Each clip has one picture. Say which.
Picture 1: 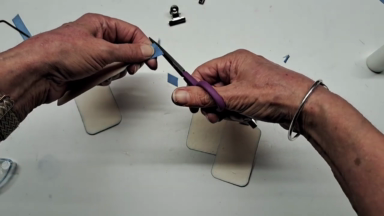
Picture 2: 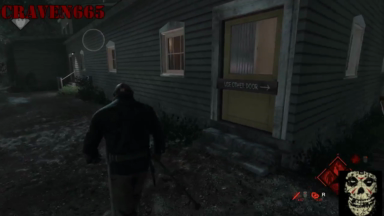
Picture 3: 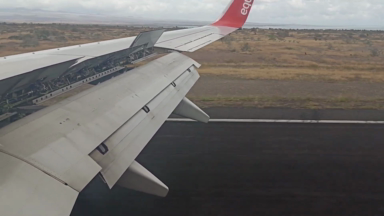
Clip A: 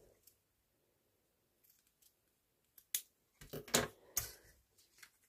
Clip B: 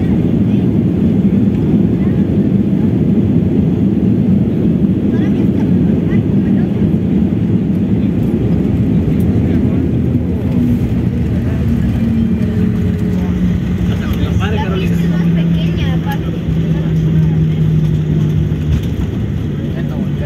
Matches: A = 1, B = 3